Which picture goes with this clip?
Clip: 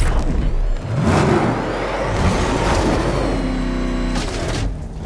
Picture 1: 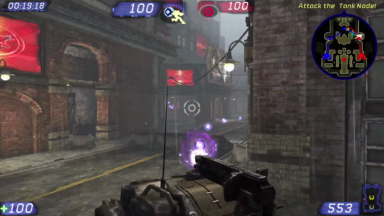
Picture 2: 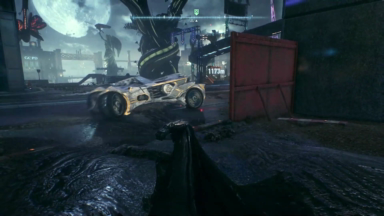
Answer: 2